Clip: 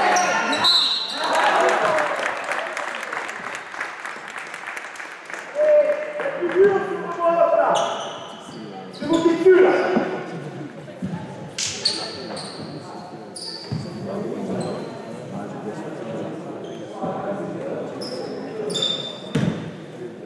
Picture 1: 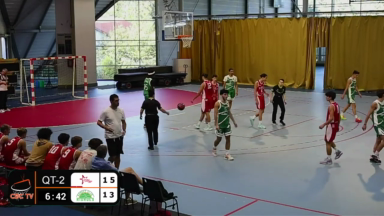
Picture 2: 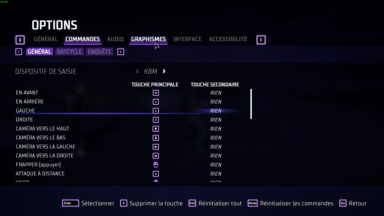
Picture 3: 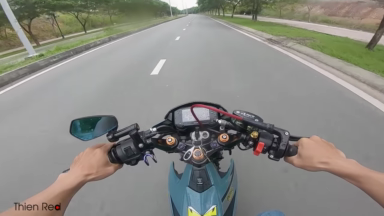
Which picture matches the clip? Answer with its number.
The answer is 1